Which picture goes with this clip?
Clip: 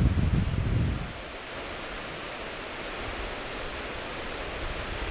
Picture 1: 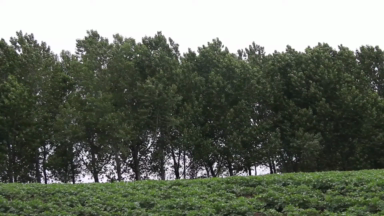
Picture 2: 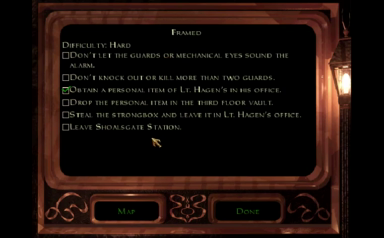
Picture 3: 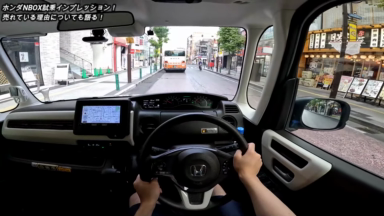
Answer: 1